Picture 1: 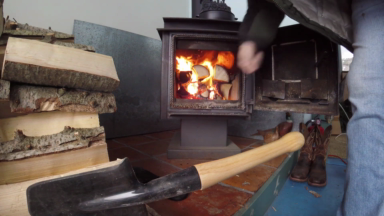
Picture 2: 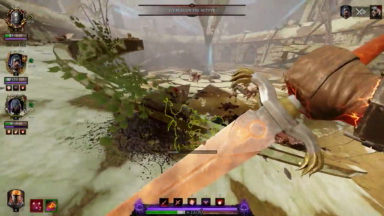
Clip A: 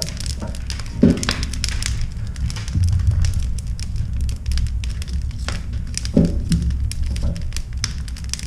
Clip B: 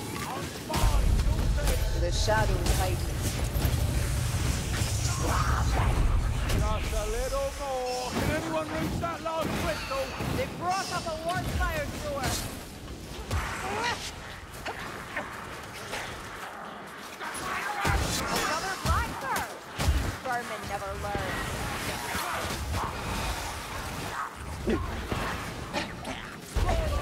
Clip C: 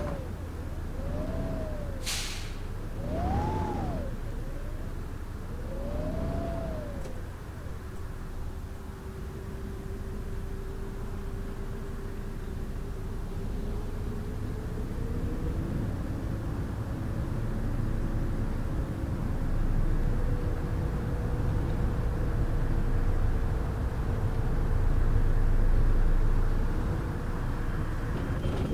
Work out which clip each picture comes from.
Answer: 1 A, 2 B